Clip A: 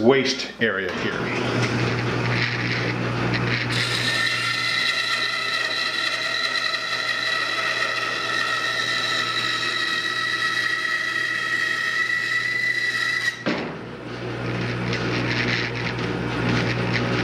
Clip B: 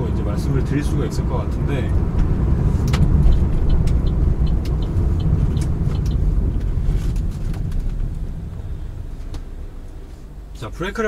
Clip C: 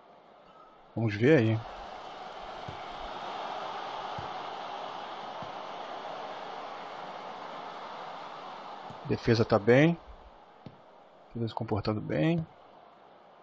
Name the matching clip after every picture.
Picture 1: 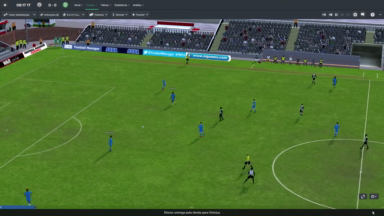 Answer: C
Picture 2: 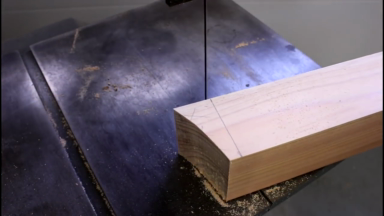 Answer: A